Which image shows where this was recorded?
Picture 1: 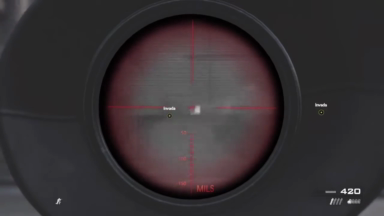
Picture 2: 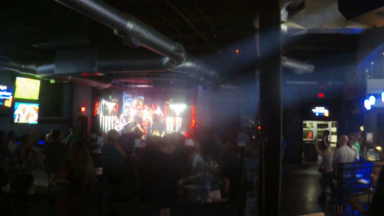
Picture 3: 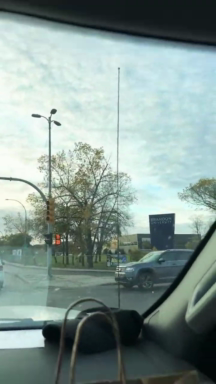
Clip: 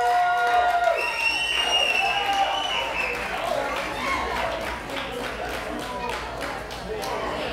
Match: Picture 2